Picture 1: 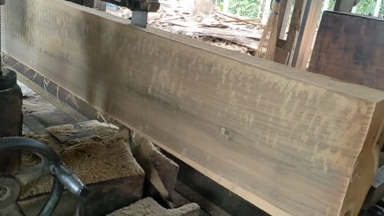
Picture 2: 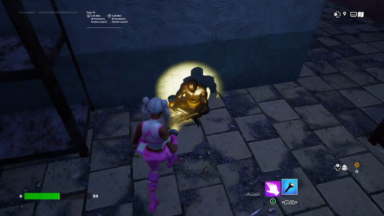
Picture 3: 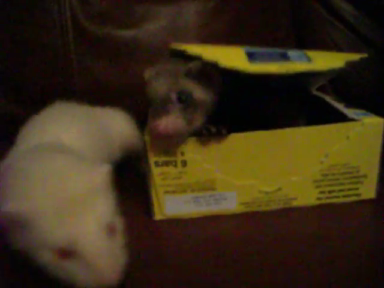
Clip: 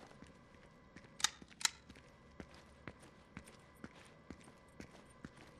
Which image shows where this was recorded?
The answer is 2